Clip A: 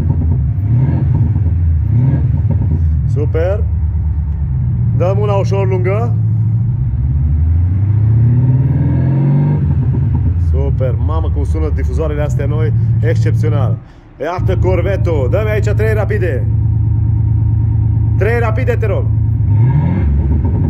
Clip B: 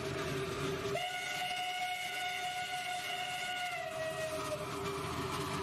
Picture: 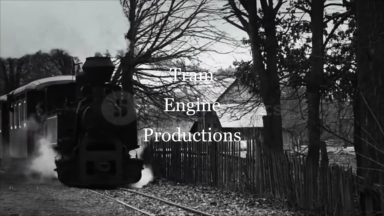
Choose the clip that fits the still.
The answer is B